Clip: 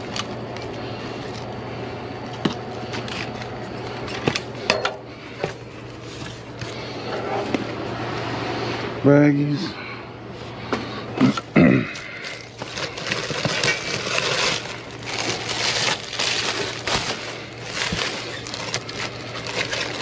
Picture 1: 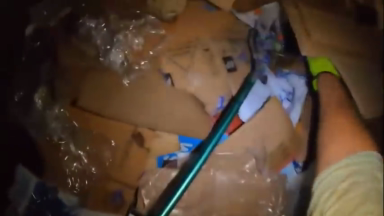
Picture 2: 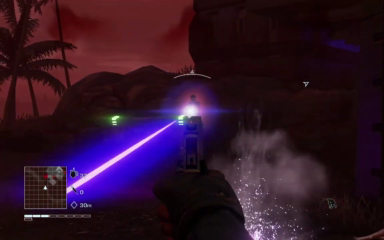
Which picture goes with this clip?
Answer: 1